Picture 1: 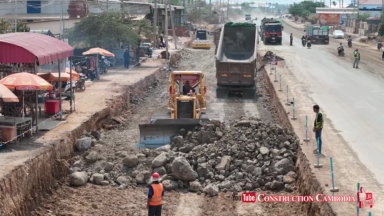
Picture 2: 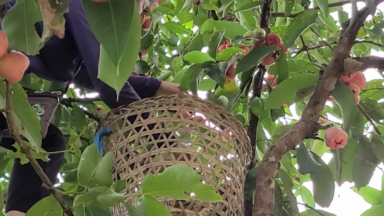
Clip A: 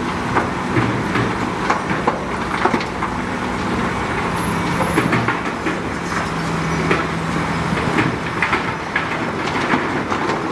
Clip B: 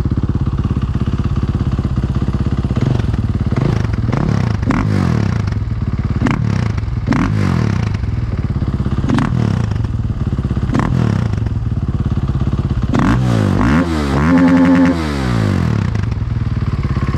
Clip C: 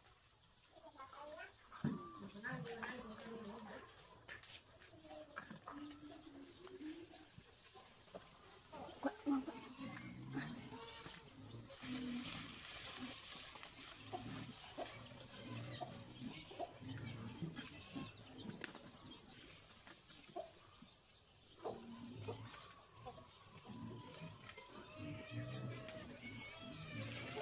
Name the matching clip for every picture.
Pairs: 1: A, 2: C